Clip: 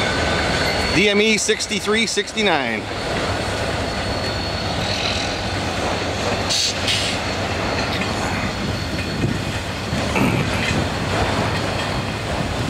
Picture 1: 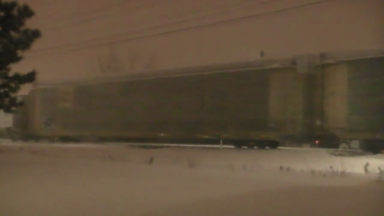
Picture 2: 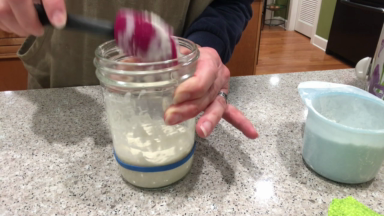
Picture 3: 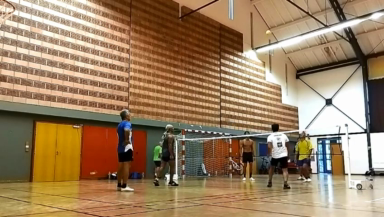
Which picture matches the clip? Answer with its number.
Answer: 1